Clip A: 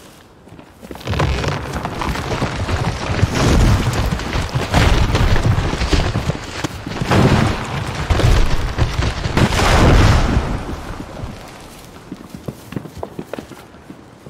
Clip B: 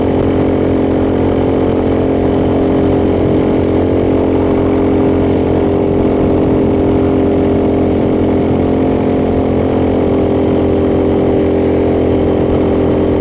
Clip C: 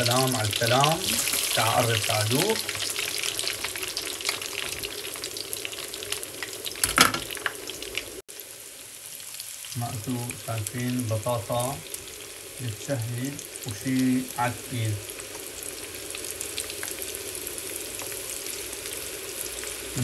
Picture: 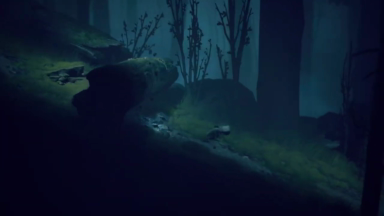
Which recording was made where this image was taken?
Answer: A